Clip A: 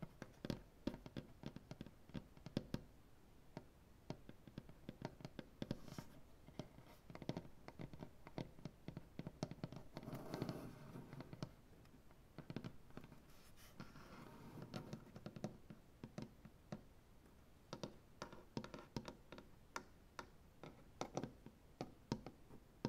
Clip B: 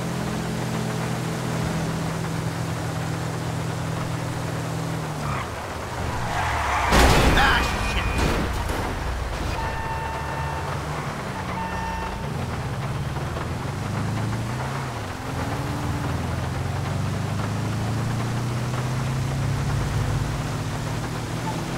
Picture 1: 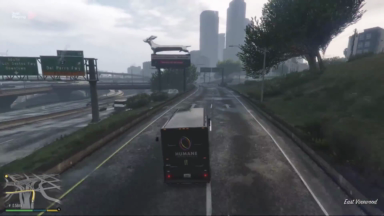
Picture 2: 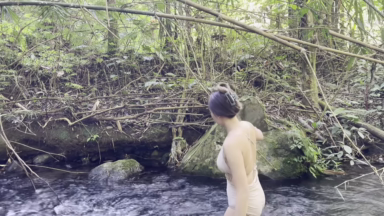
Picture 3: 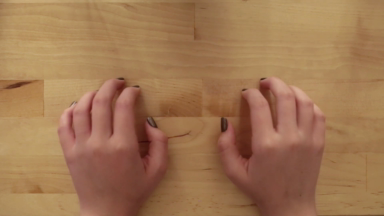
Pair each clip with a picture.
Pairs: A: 3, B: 1